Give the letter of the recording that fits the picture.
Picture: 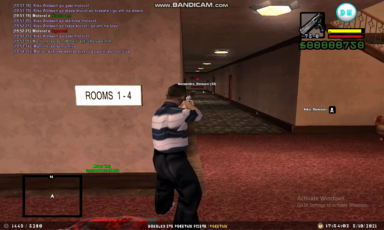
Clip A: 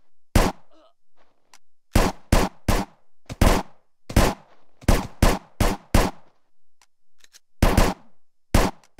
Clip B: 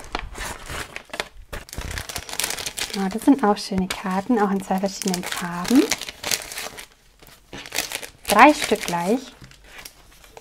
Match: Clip A